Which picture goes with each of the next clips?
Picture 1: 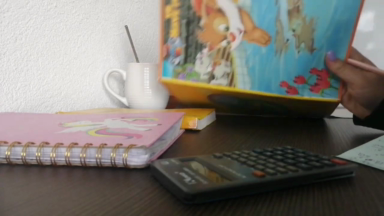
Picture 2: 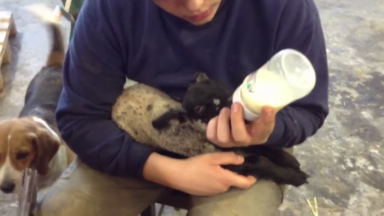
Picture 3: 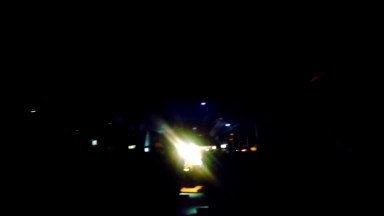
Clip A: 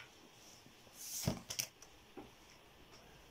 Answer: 1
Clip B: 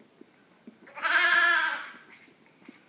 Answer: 2